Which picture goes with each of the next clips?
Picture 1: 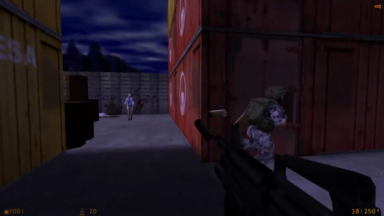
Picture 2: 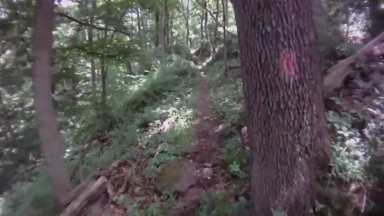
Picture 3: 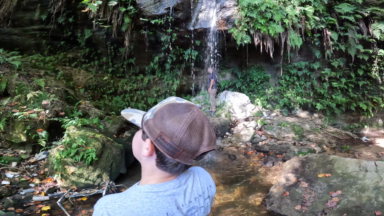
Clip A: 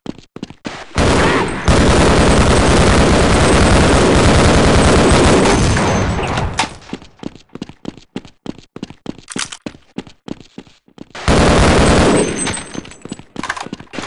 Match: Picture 1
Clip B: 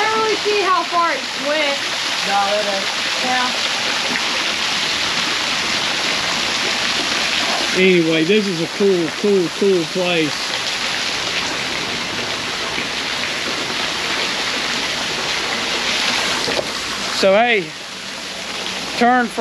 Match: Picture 3